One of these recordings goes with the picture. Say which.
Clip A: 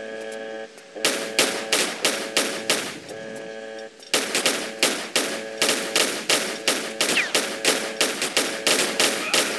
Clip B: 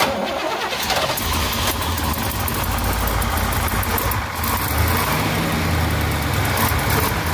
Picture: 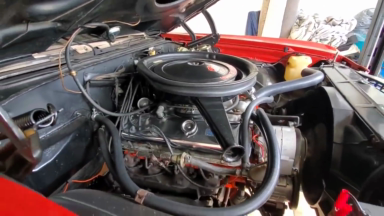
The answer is B